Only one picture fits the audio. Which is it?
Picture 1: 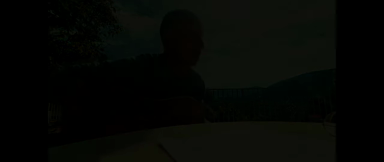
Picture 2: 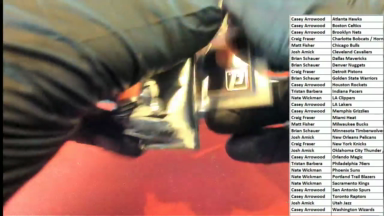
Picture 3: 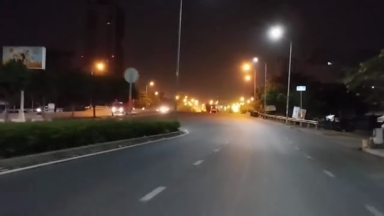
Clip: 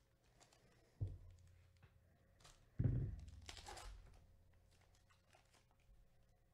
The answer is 2